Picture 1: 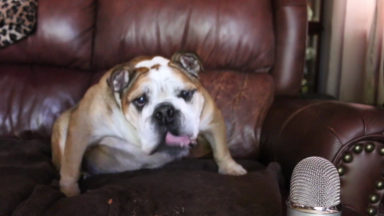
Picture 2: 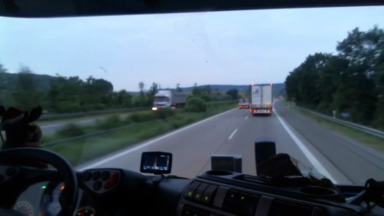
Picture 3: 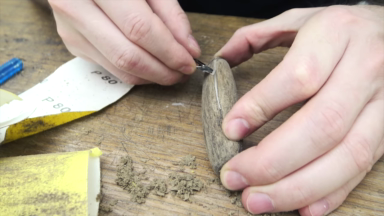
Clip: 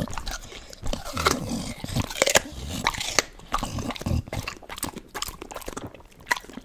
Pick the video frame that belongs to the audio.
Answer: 1